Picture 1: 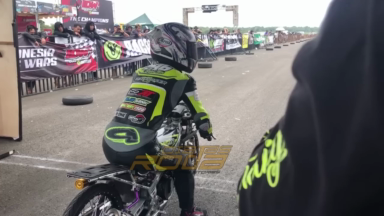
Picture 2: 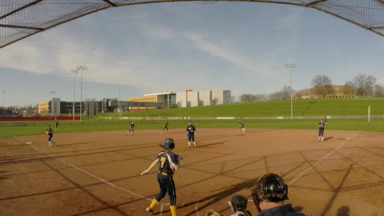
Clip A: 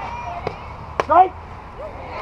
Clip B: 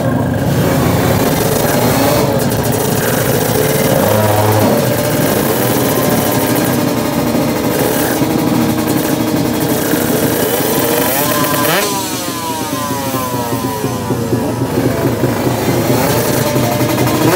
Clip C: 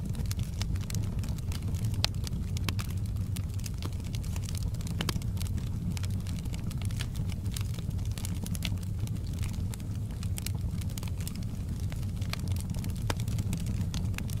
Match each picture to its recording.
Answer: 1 B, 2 A